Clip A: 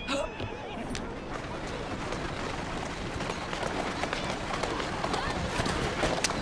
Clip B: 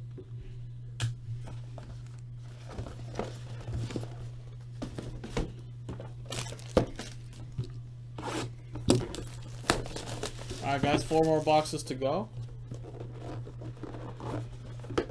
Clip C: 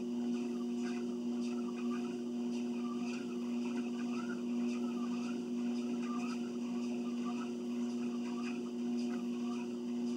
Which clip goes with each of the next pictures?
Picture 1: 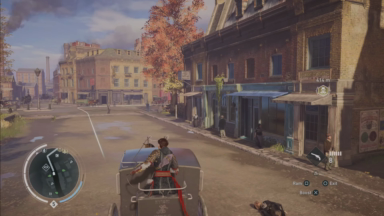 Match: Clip A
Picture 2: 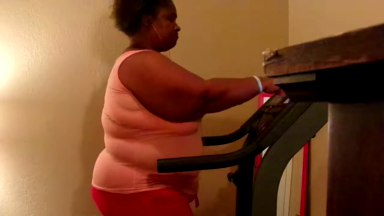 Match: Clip C